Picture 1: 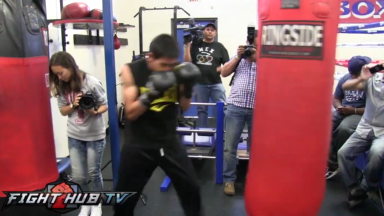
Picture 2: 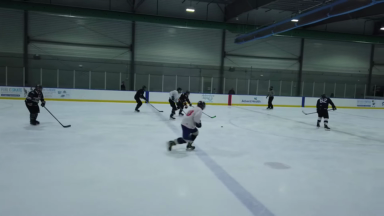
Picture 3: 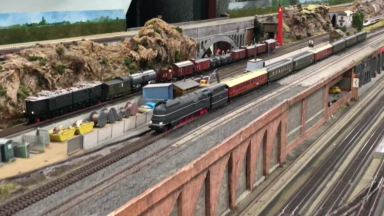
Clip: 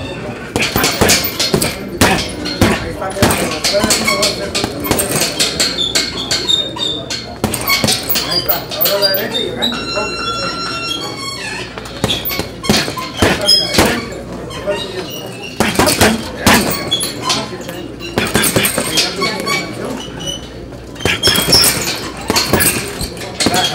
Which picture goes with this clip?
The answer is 1